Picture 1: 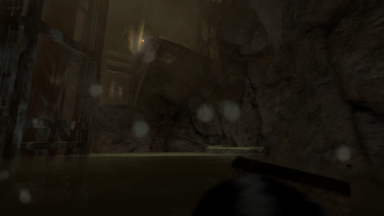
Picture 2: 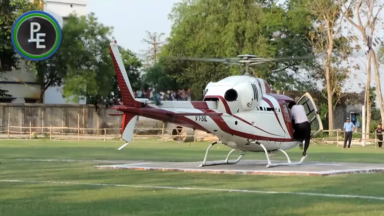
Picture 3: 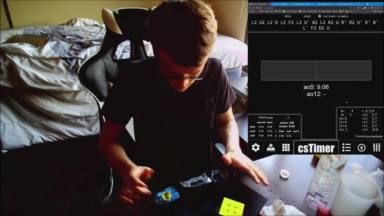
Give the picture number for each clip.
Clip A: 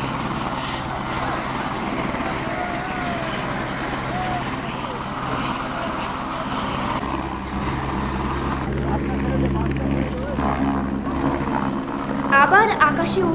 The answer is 2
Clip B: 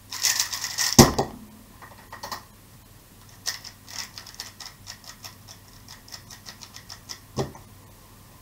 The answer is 3